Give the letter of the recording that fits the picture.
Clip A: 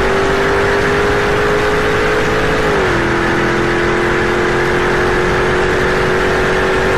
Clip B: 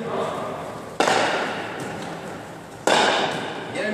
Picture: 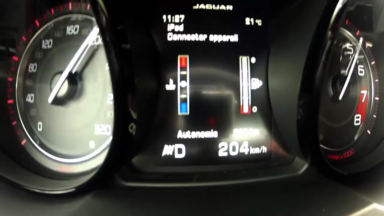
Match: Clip A